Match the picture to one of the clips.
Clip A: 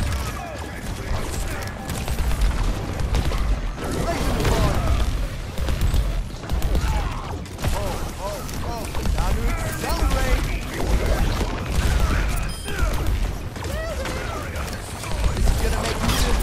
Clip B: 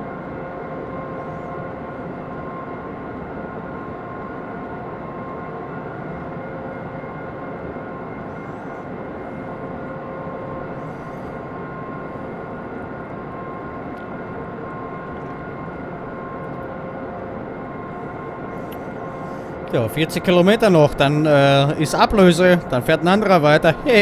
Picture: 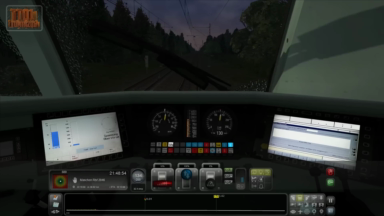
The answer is B